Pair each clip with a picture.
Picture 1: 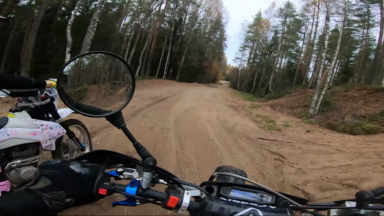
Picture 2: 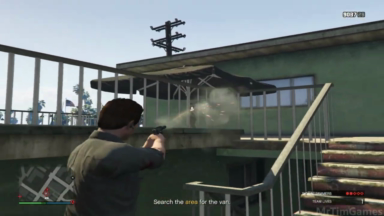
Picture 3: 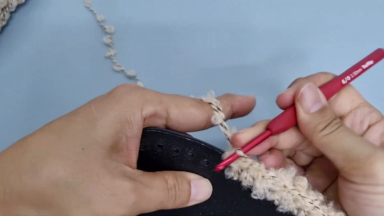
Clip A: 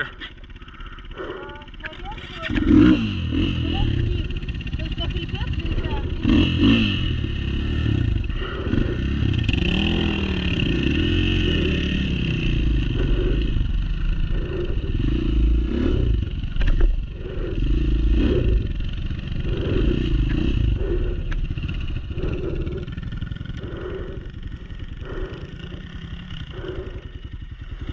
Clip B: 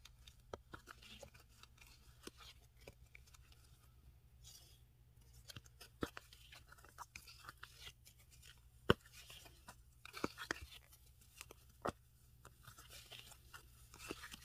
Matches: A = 1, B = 3